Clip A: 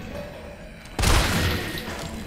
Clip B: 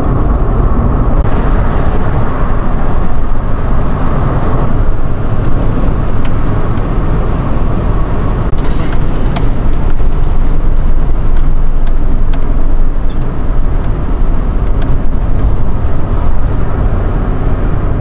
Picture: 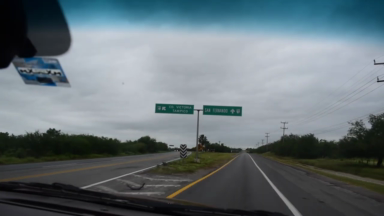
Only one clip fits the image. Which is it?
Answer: B